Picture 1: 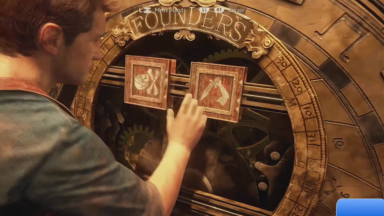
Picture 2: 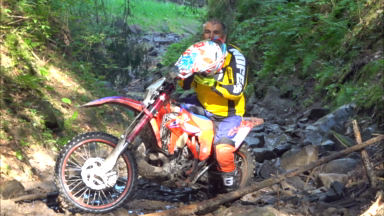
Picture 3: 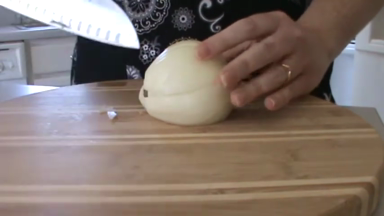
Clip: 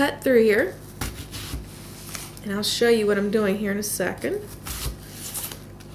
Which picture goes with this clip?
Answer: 3